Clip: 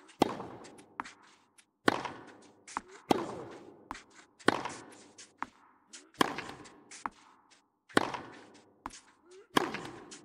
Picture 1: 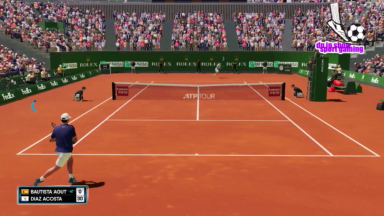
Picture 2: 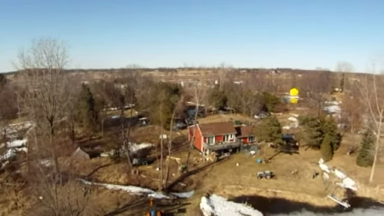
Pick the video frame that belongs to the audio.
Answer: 1